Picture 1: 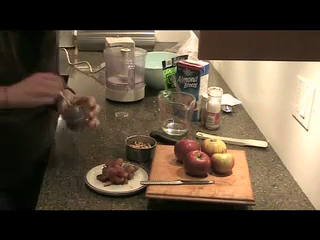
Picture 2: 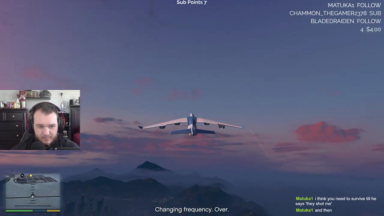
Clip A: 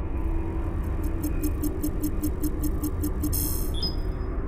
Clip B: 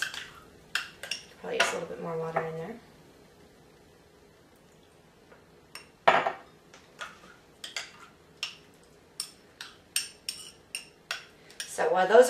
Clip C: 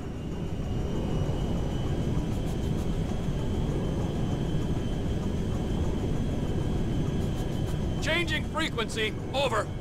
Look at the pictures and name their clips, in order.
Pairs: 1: B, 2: C